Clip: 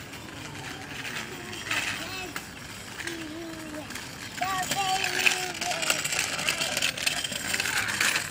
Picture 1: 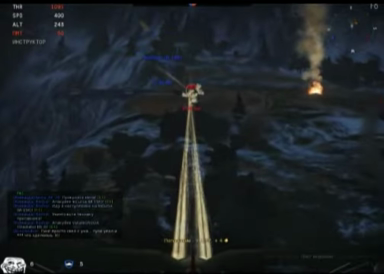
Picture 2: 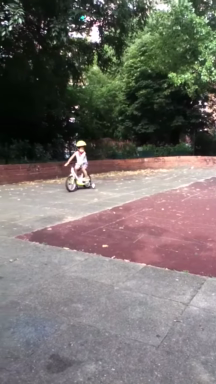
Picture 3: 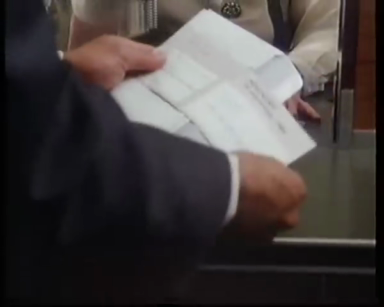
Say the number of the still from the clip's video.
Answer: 2